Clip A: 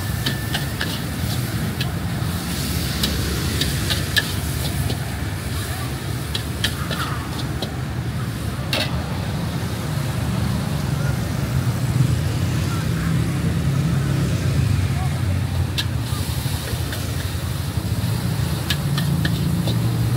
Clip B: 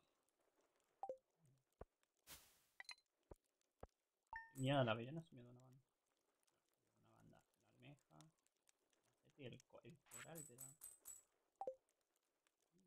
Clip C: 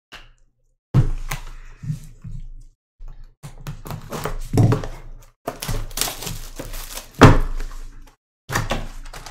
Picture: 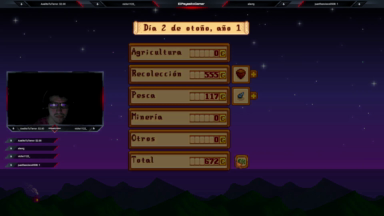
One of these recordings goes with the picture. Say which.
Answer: B